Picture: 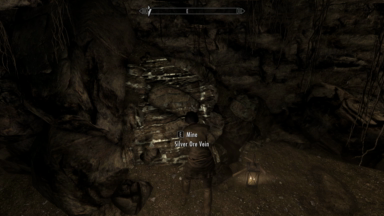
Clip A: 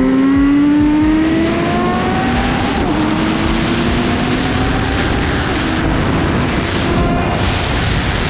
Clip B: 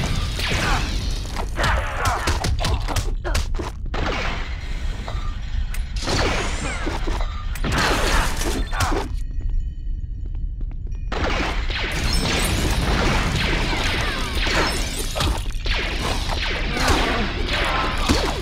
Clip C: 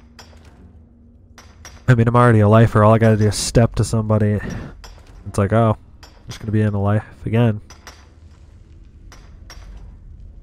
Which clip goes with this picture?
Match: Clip C